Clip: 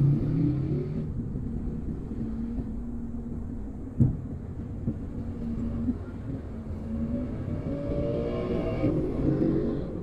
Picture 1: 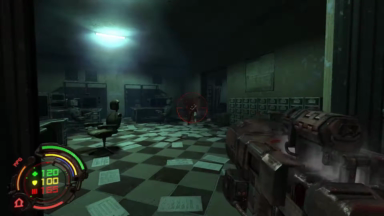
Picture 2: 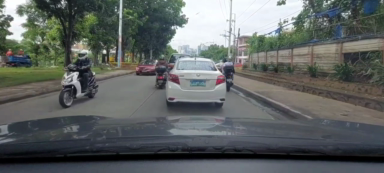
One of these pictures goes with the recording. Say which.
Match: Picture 2